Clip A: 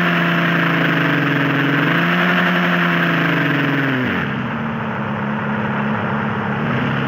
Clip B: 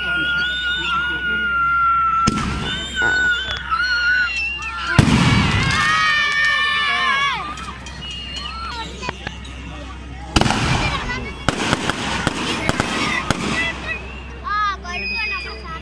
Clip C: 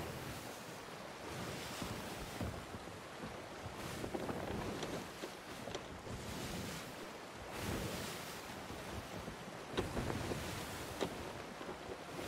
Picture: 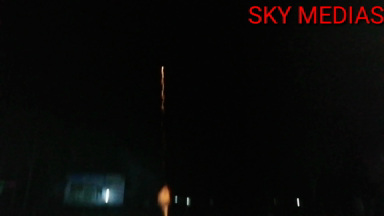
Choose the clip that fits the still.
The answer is B